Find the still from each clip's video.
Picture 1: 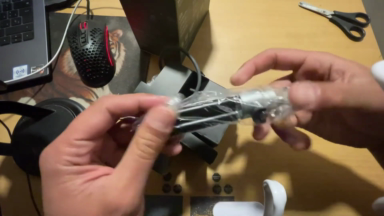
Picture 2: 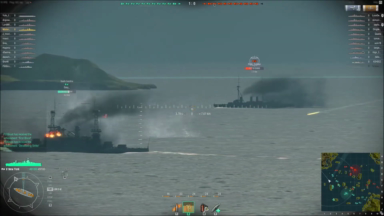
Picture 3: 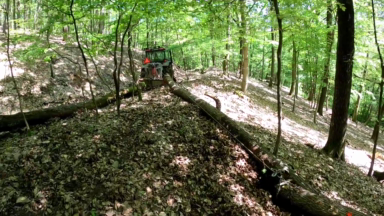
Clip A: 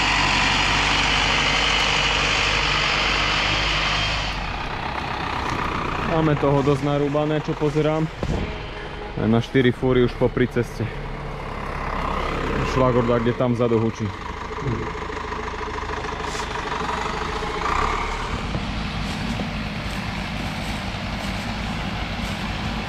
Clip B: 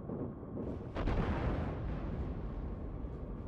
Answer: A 3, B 2